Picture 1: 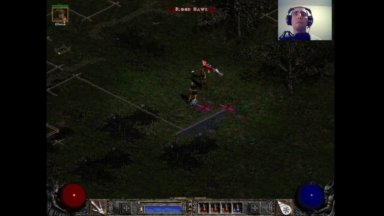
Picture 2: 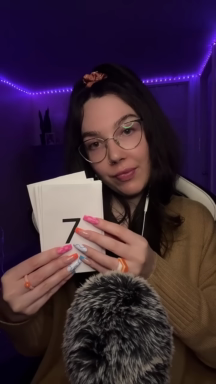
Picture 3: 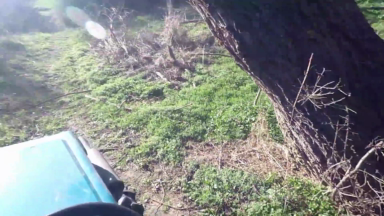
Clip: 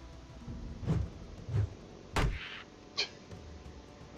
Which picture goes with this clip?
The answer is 1